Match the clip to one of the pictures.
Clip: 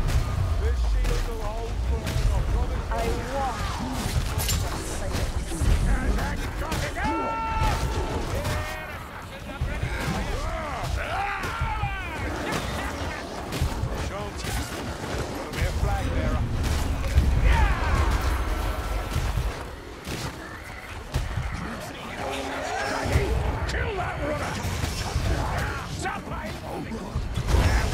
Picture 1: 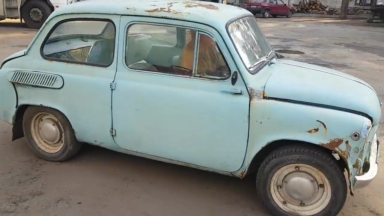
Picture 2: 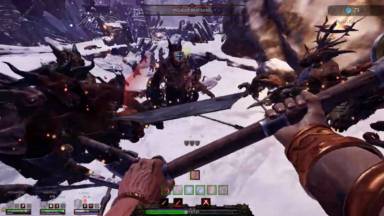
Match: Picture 2